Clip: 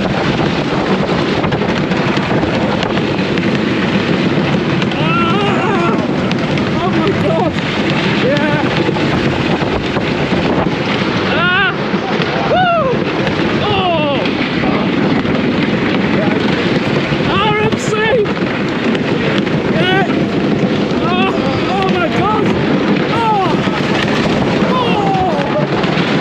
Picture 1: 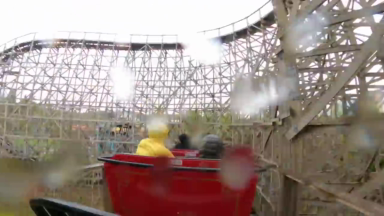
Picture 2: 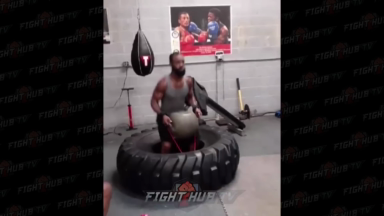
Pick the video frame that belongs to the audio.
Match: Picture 1